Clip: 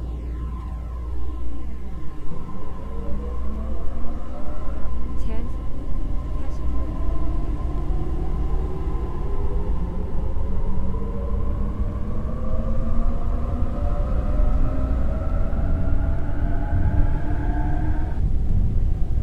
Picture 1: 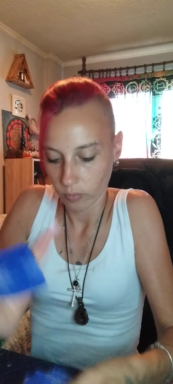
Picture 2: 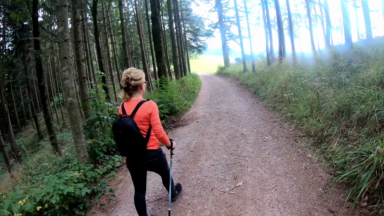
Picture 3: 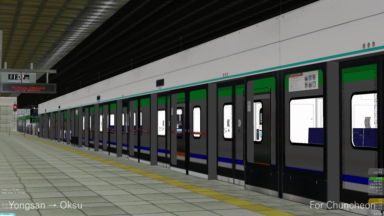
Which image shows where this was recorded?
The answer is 3